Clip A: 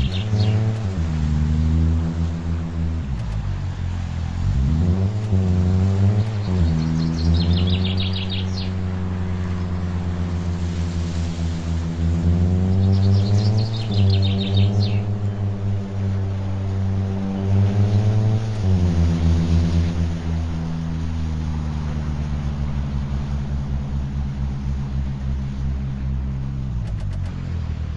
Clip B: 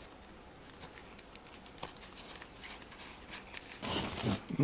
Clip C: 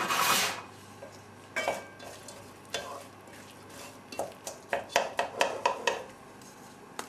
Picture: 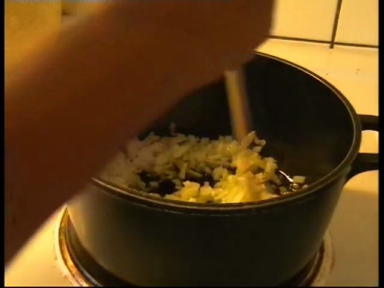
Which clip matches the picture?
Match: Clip C